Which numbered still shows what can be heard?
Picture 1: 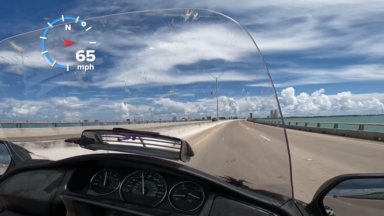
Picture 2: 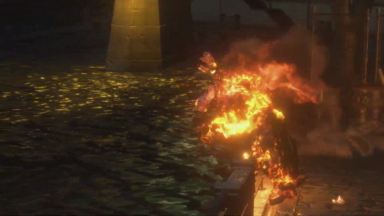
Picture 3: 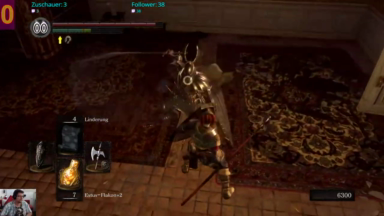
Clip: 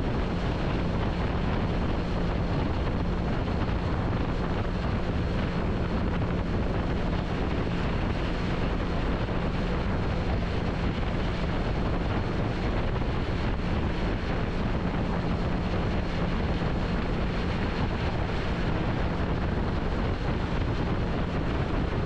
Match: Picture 1